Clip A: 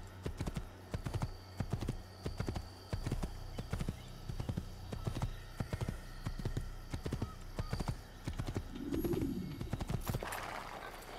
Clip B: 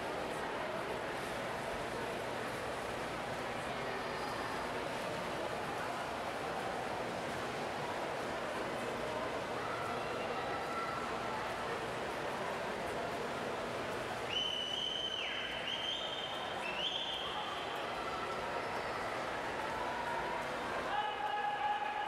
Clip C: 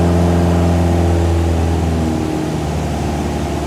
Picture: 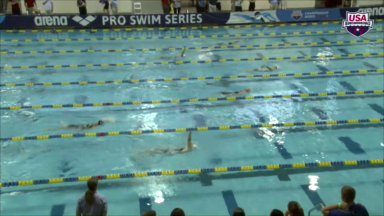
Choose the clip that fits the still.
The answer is B